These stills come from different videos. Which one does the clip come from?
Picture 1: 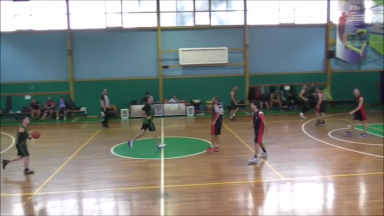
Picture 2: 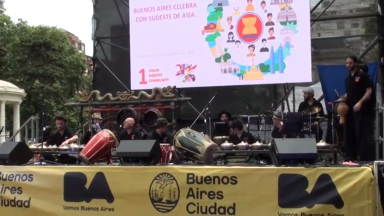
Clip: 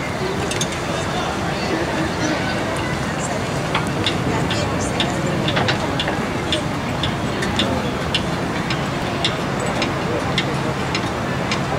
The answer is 2